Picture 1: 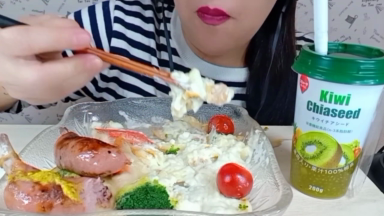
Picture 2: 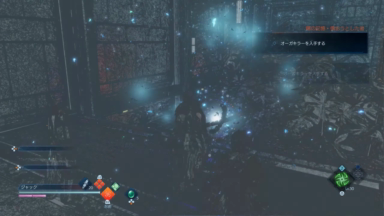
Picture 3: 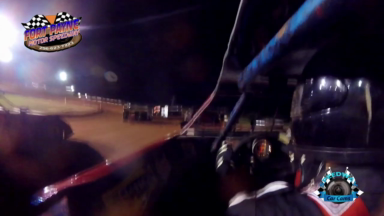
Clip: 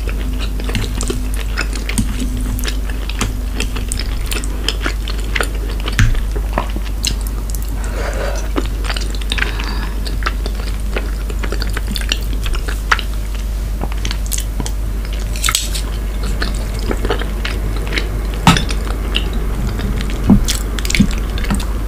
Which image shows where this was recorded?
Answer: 1